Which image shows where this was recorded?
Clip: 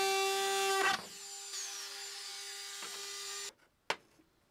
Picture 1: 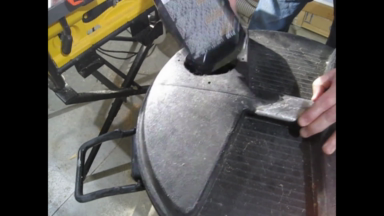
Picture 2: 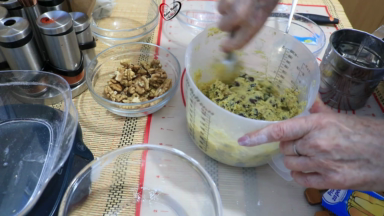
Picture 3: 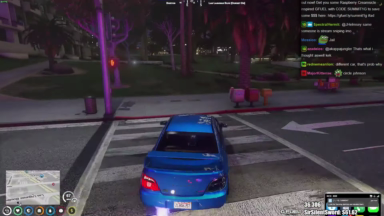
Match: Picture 1